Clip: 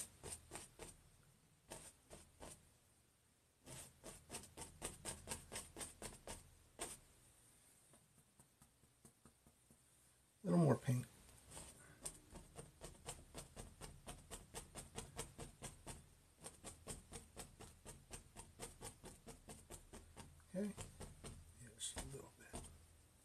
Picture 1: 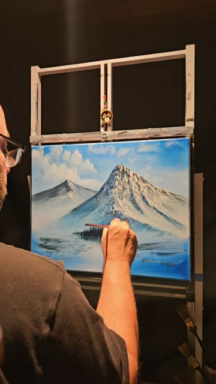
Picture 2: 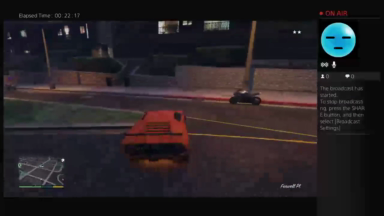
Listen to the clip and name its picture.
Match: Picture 1